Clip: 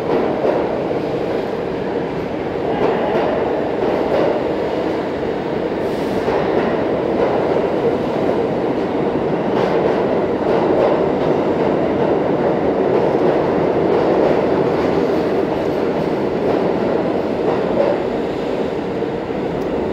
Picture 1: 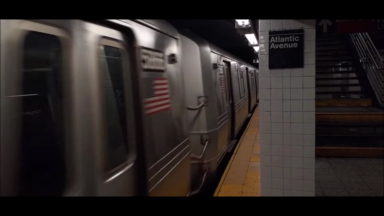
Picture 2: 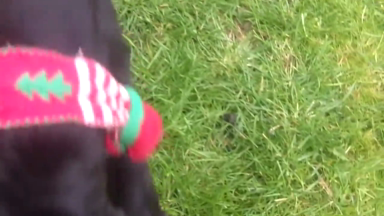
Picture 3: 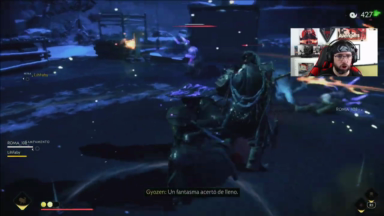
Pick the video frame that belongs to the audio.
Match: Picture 1